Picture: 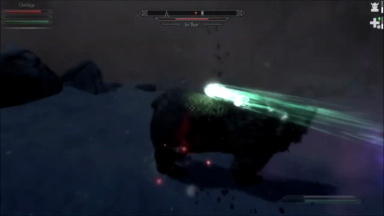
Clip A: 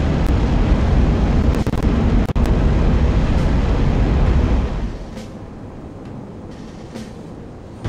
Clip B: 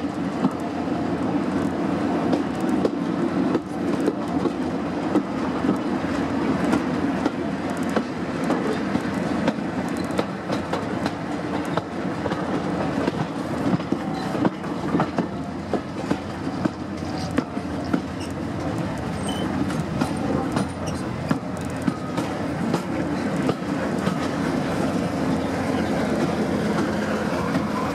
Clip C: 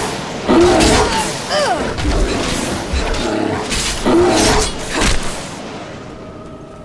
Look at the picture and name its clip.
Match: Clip C